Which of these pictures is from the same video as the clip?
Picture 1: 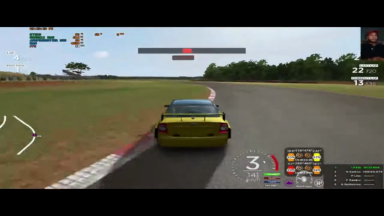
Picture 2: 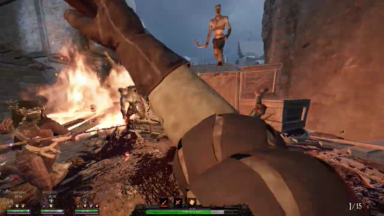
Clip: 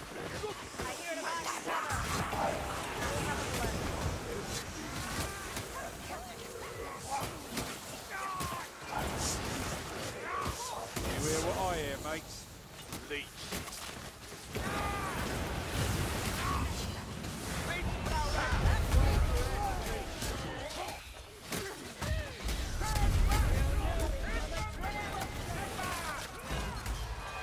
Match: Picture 2